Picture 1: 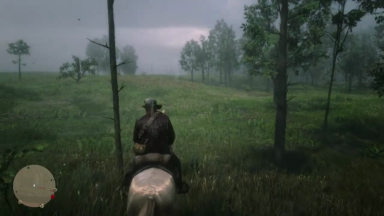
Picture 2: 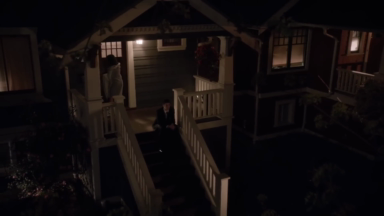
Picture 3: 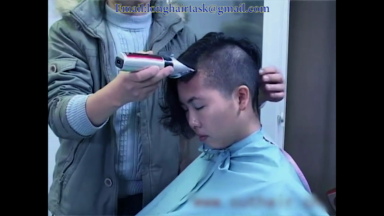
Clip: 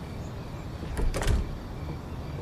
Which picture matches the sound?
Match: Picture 2